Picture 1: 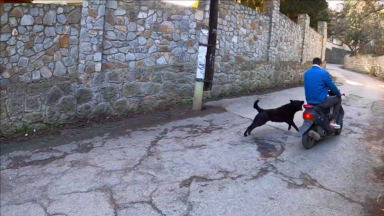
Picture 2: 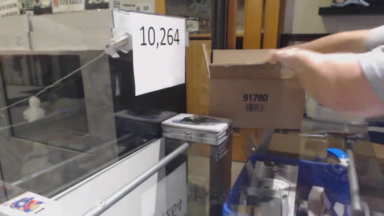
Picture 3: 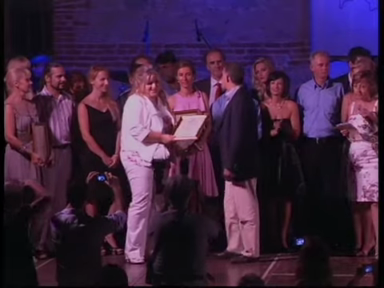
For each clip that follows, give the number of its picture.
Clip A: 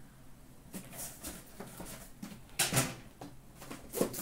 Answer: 2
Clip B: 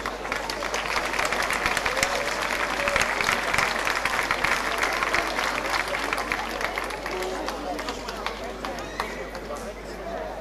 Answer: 3